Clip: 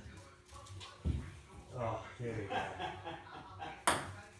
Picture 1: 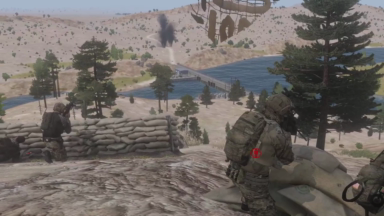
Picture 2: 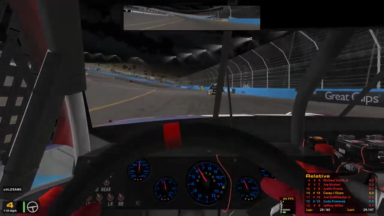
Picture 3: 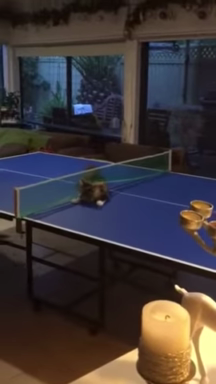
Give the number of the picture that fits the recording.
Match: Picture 3